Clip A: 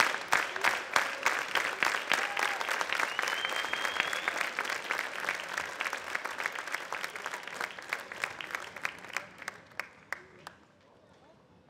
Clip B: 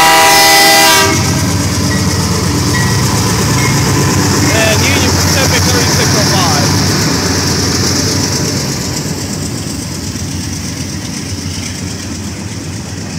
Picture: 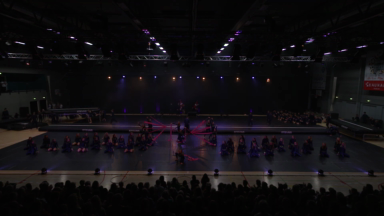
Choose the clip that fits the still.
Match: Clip A